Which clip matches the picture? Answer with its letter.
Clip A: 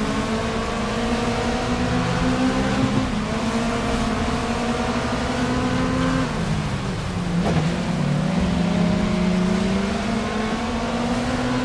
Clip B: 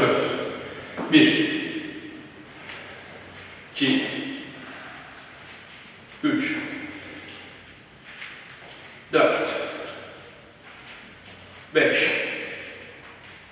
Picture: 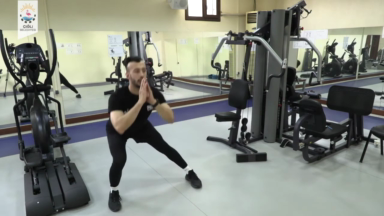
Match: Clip B